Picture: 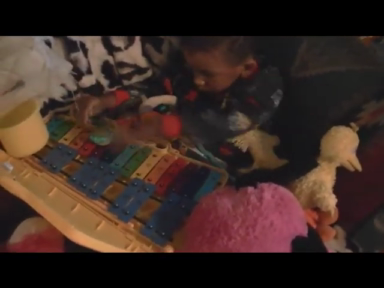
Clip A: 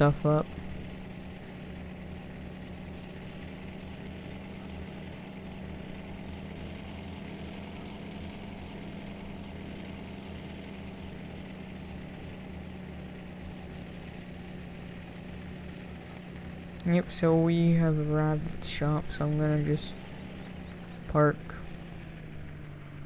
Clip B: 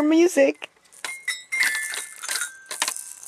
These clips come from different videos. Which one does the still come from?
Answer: B